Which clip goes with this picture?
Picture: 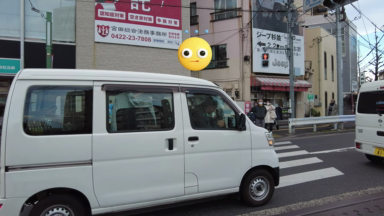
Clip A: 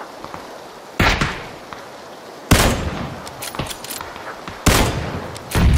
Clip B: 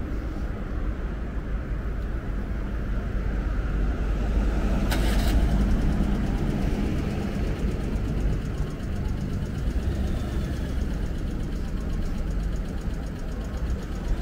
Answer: B